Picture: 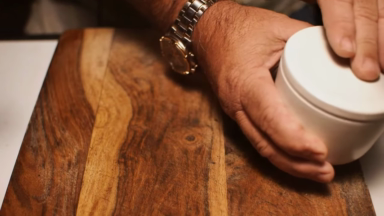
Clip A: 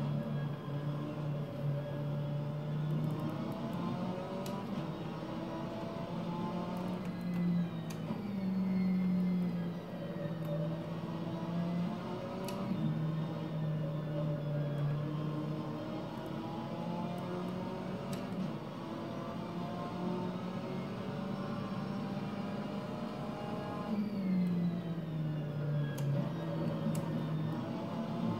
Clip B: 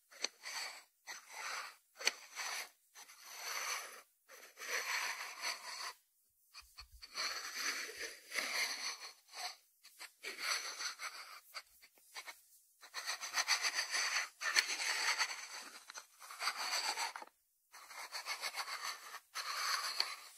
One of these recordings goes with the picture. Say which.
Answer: B